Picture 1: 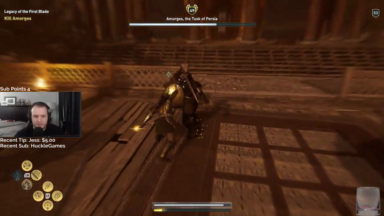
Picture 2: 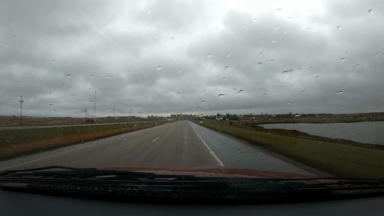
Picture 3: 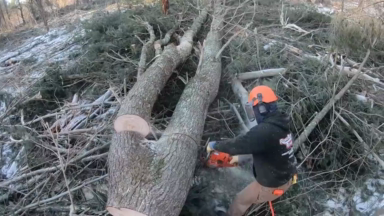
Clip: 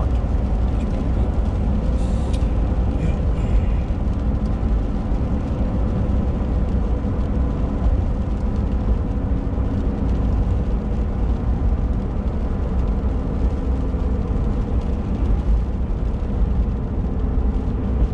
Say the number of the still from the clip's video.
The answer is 2